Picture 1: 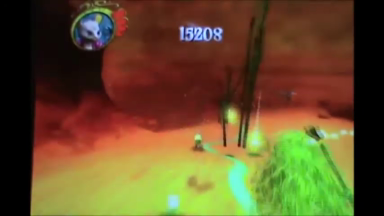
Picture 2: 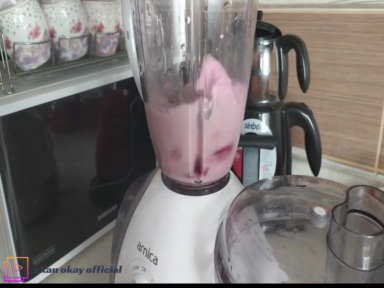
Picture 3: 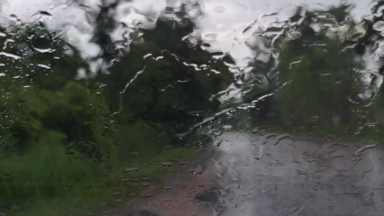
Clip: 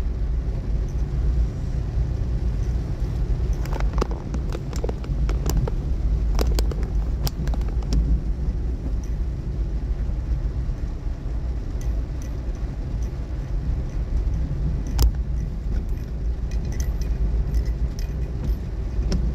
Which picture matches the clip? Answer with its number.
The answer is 3